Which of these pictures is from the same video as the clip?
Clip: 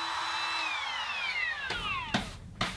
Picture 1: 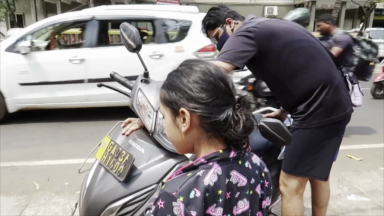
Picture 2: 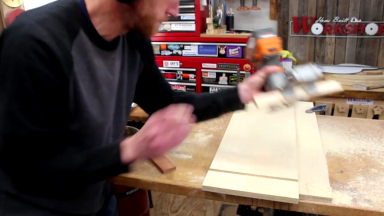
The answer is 2